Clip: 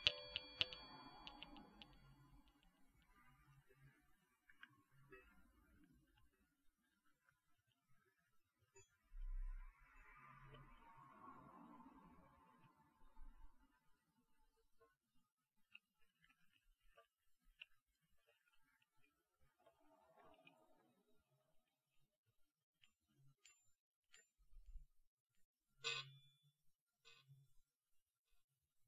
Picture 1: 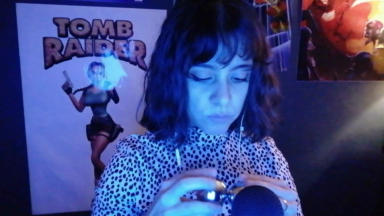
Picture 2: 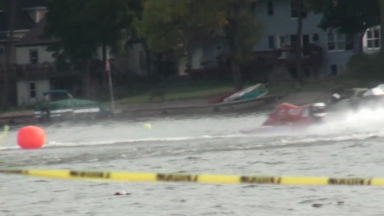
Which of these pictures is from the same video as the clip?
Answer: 1